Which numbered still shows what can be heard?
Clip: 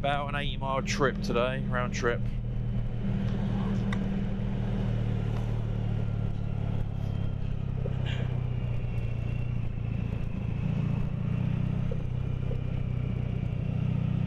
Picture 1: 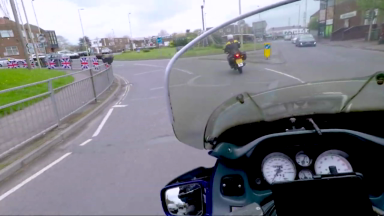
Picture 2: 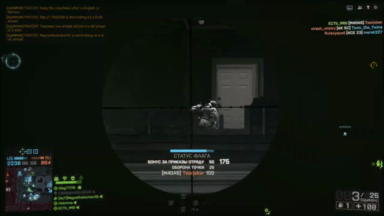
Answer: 1